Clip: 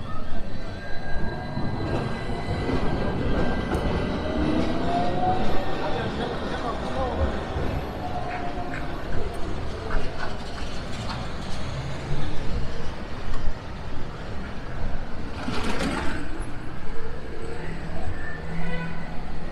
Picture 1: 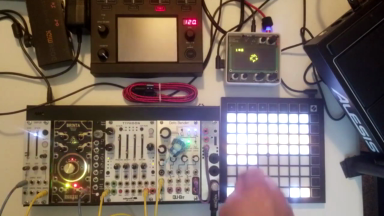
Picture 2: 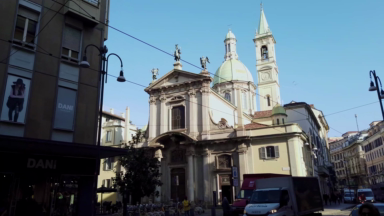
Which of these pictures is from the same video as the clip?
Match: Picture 2